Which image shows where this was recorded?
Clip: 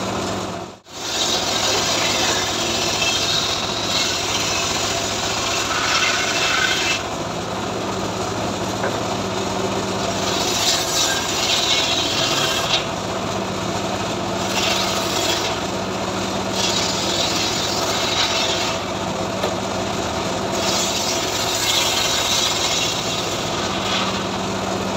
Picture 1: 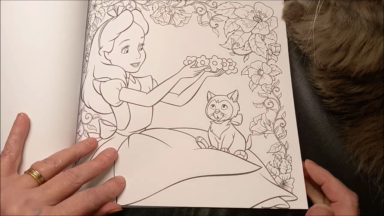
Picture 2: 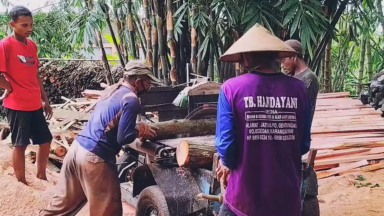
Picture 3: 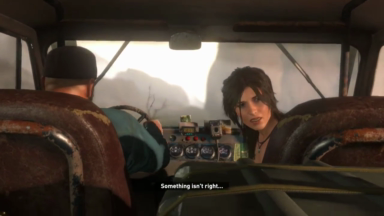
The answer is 2